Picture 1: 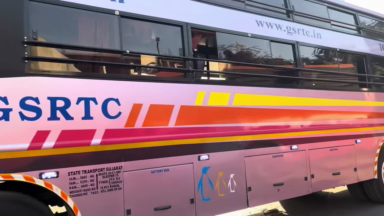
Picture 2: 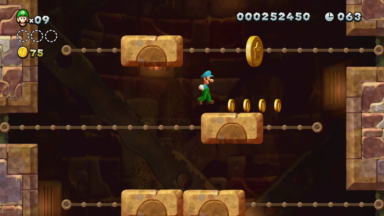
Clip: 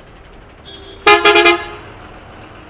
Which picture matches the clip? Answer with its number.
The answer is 1